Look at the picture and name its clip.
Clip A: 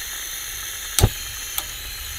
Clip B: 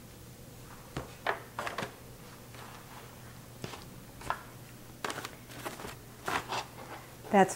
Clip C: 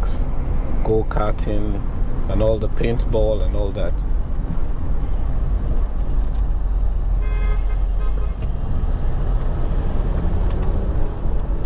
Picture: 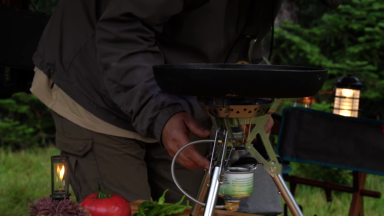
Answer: A